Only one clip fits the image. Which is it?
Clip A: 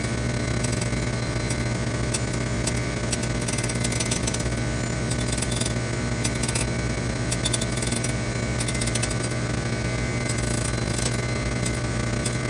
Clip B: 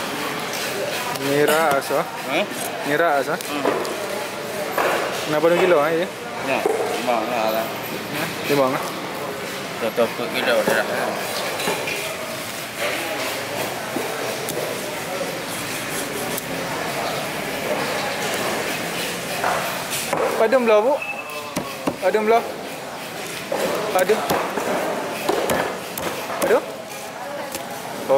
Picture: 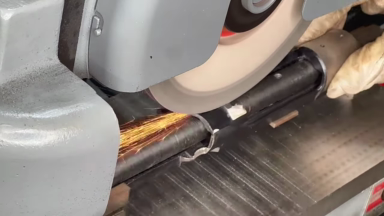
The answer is A